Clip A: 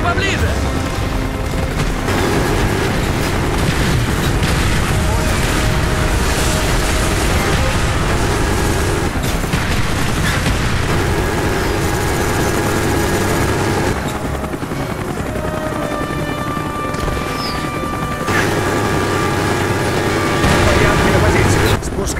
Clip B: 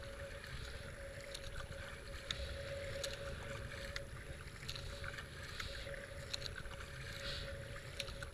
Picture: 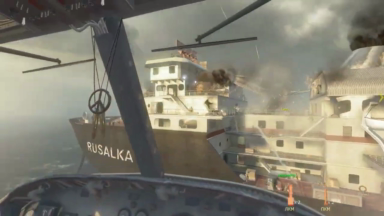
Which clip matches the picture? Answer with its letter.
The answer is A